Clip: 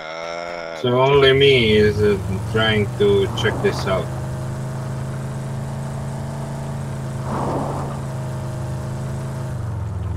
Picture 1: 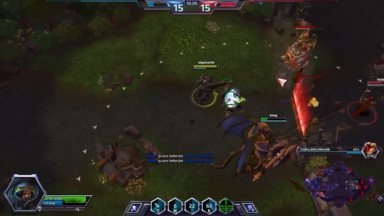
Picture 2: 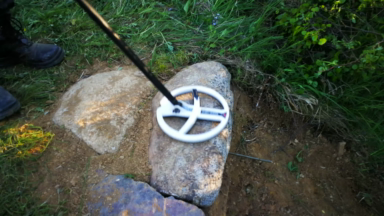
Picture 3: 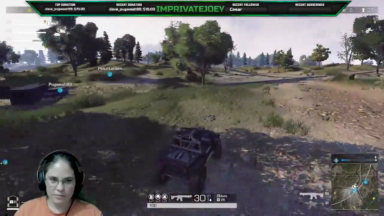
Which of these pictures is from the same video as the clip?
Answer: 3